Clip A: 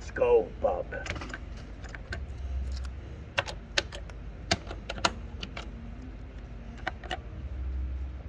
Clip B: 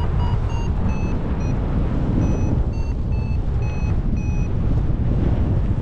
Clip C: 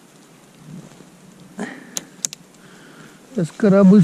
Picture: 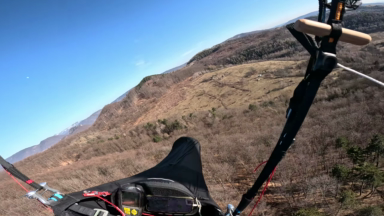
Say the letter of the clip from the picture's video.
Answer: B